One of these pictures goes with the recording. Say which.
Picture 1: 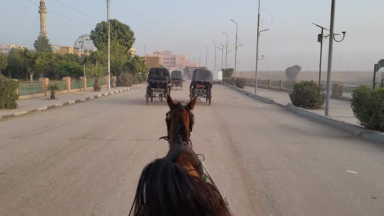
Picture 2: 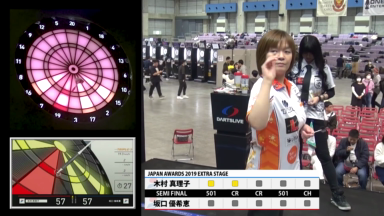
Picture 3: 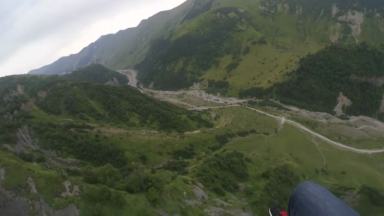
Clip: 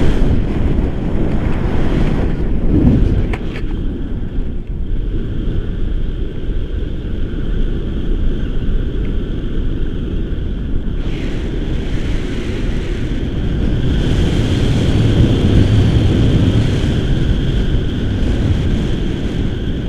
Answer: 3